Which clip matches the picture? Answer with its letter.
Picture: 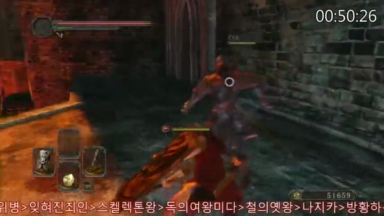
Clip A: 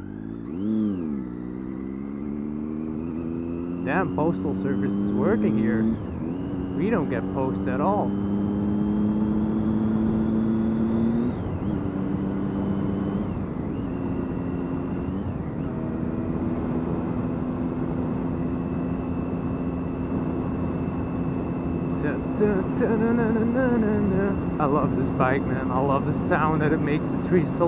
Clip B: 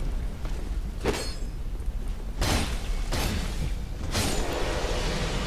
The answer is B